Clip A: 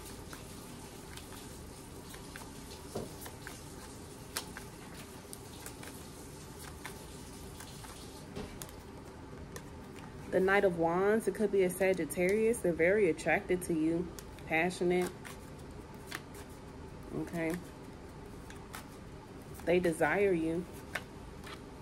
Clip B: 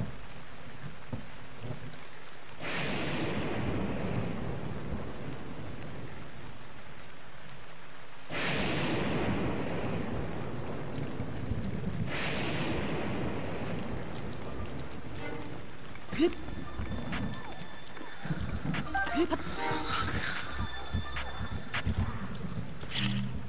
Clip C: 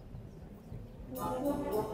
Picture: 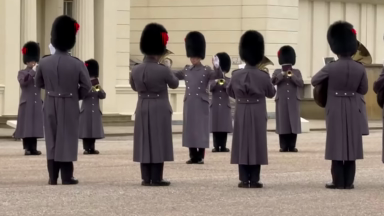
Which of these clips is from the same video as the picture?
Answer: C